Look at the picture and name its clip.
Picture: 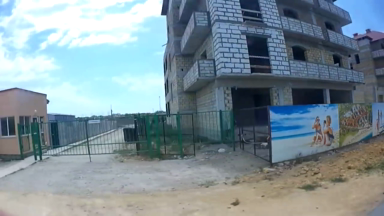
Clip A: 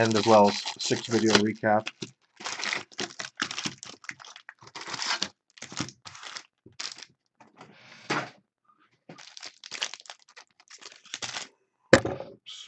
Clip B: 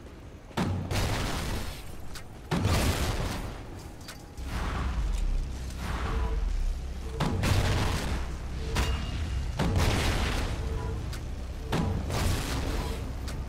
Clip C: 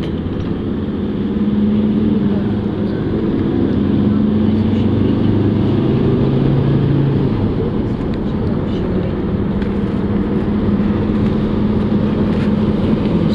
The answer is C